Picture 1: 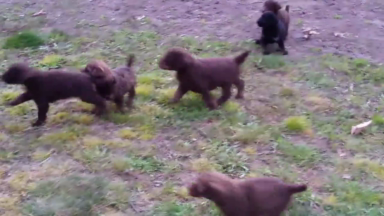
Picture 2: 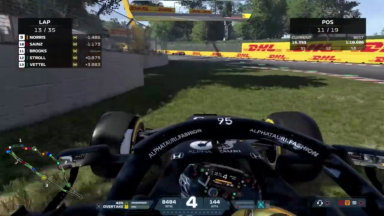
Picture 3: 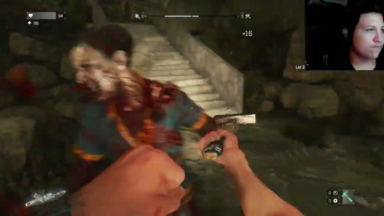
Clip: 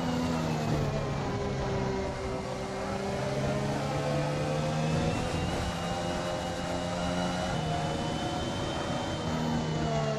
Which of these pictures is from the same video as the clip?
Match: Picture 2